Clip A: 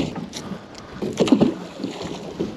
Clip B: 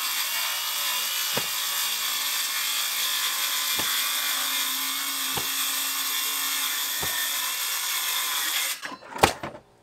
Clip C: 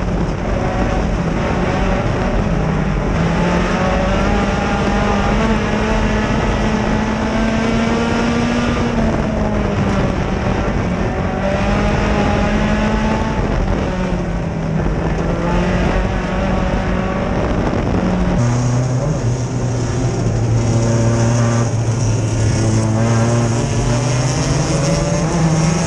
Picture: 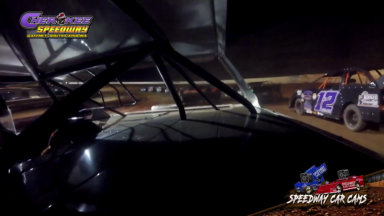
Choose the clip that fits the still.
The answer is C